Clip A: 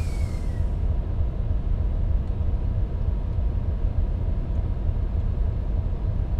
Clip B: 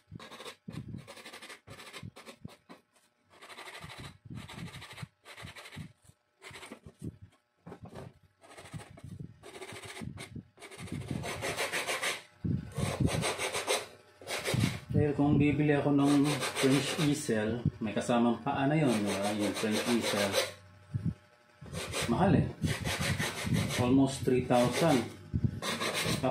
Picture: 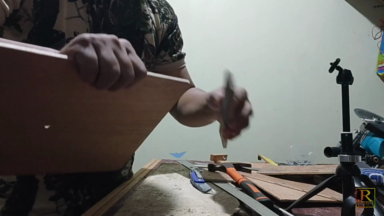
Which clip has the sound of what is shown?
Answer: B